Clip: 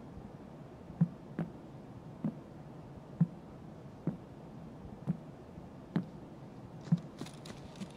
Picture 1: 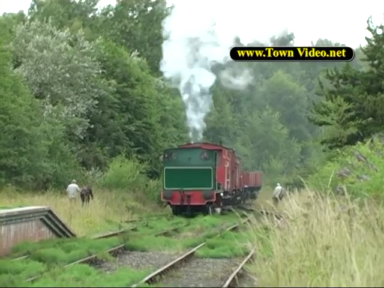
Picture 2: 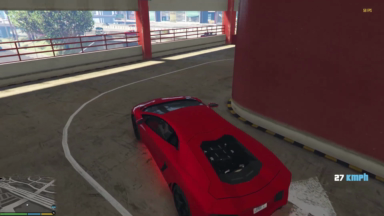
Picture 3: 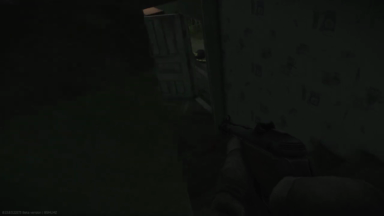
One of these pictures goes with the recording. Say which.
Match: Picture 3